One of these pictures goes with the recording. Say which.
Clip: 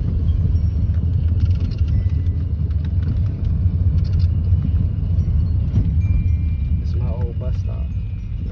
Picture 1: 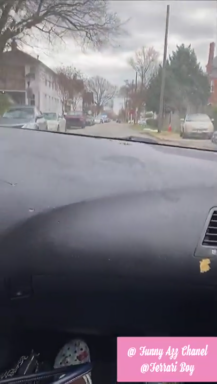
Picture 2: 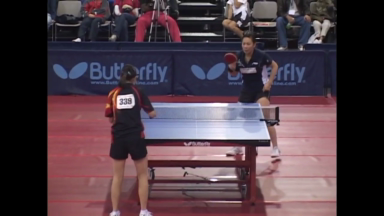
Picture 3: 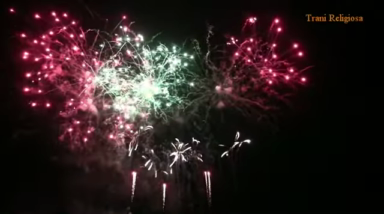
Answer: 1